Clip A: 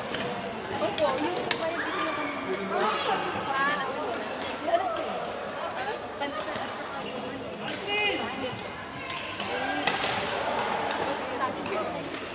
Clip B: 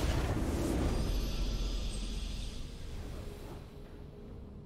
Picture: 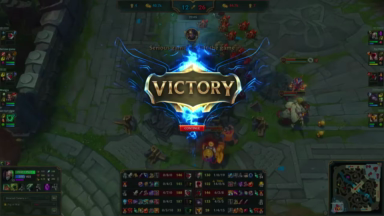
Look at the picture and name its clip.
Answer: B